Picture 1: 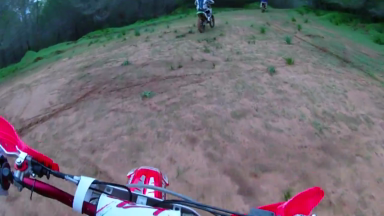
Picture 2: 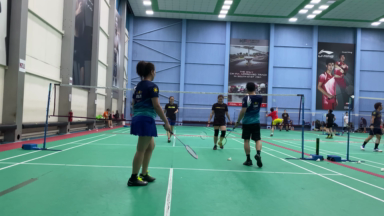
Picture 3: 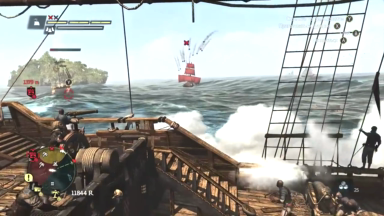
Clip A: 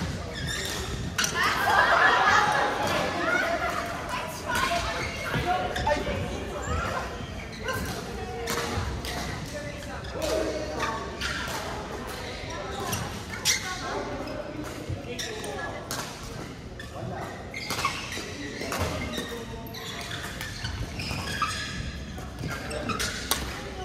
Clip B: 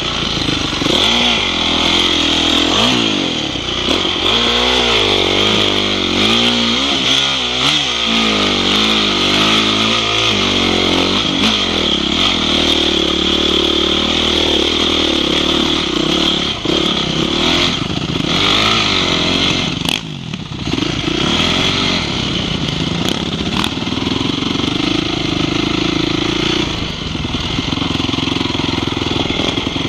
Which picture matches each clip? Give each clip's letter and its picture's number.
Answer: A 2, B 1